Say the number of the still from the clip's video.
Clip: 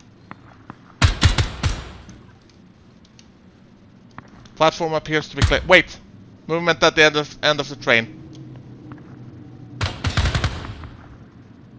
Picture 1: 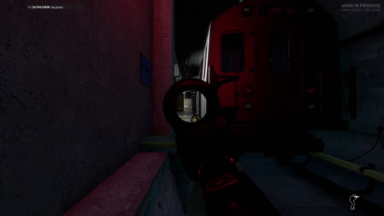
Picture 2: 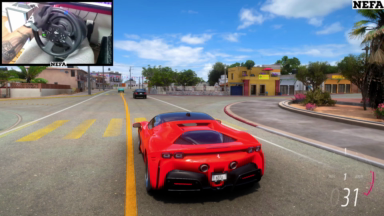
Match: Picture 1